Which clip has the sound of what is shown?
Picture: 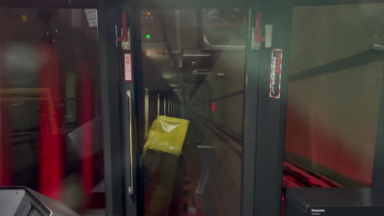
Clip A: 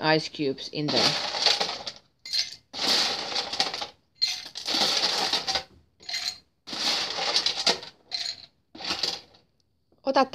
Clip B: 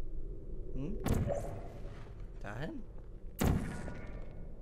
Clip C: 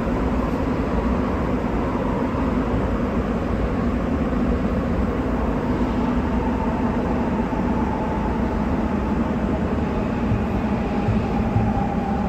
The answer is C